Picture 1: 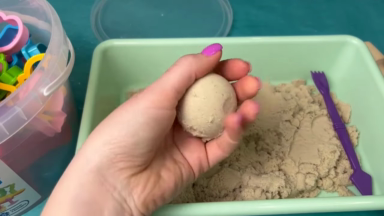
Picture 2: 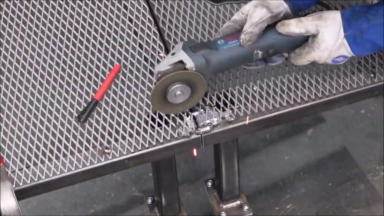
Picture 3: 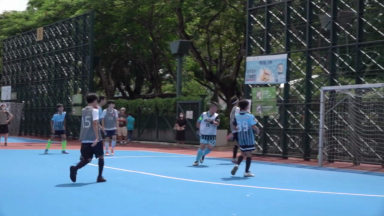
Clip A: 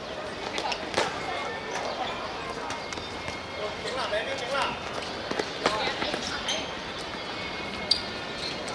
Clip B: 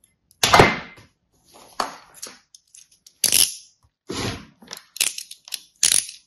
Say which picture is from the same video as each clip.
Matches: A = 3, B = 1